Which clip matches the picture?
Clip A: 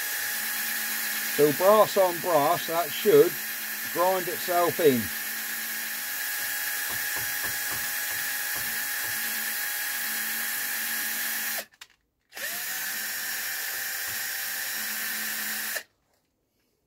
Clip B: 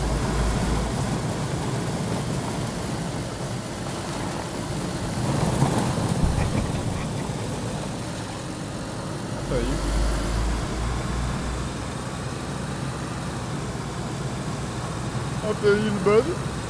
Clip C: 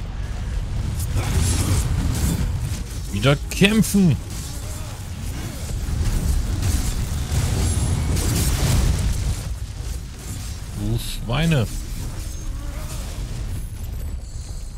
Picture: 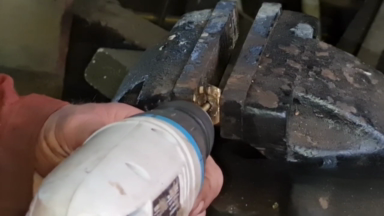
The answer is A